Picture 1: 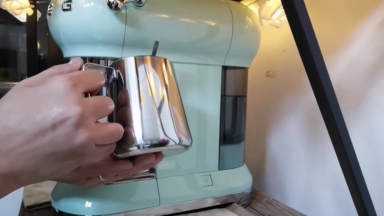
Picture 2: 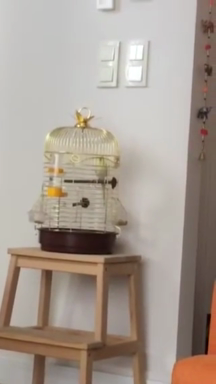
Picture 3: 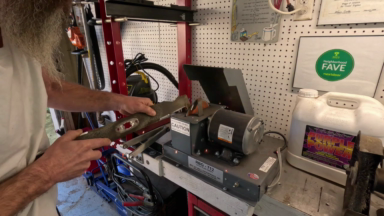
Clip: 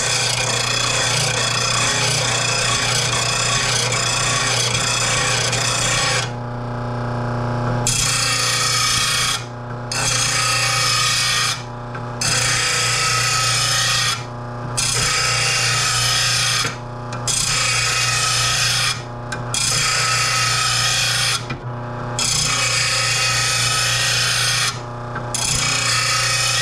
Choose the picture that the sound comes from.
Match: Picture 3